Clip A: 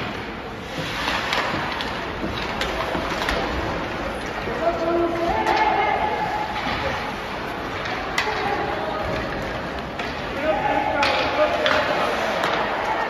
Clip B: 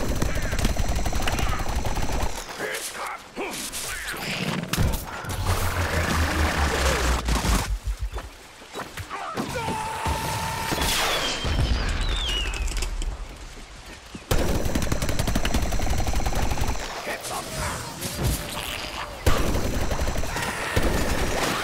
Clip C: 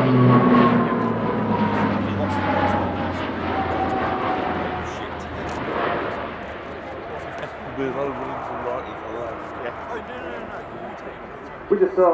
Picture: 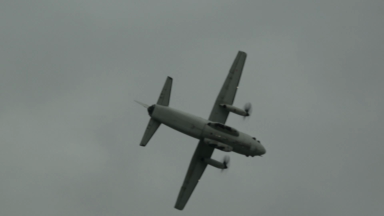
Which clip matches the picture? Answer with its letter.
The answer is C